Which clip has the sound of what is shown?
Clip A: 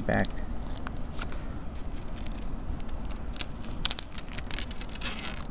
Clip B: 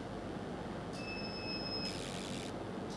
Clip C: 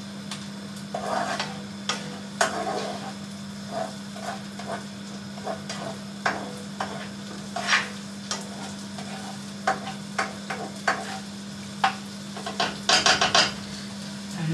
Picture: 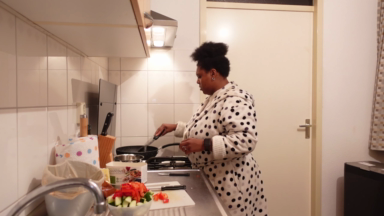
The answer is C